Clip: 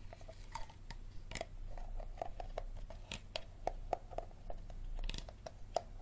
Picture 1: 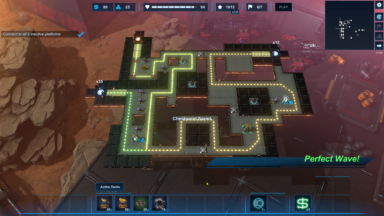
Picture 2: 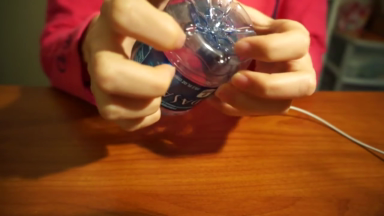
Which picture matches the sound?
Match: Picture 2